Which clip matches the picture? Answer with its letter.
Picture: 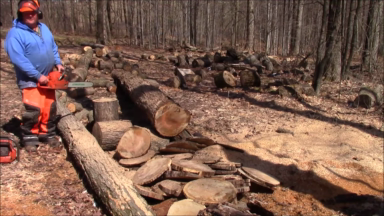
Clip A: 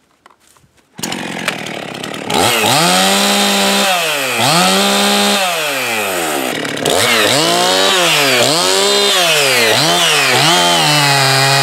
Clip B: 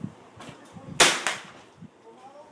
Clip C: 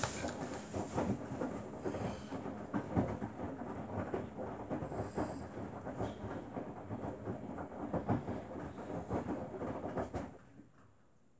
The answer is A